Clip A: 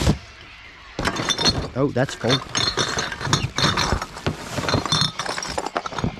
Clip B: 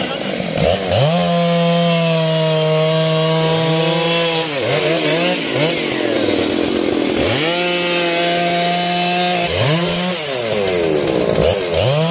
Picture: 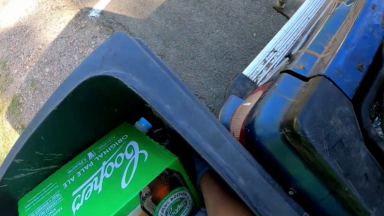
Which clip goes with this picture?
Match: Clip A